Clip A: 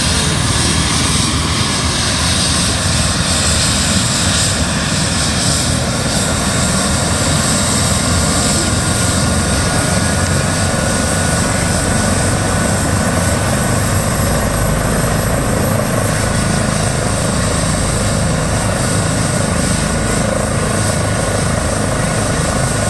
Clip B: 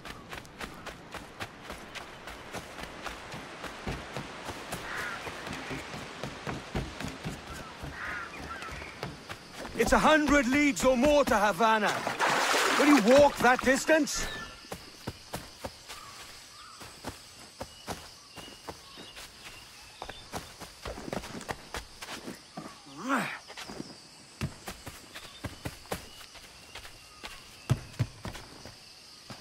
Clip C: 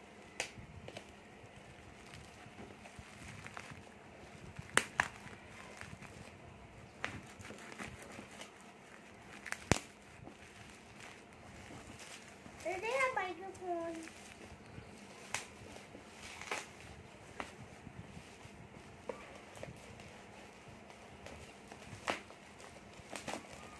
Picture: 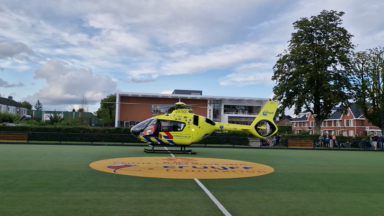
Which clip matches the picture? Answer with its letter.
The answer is A